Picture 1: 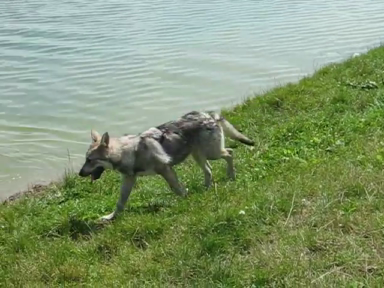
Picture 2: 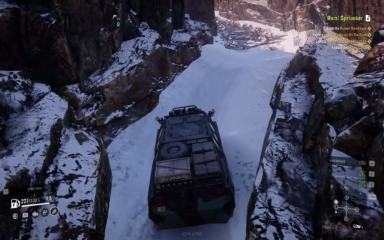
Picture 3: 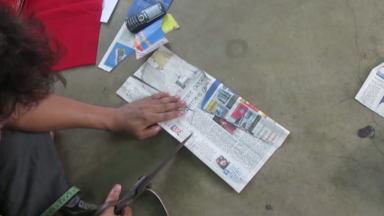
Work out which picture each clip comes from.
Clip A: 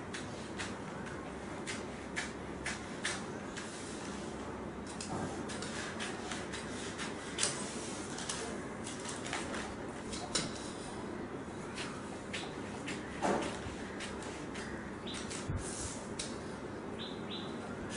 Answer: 3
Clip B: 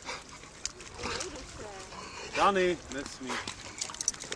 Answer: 1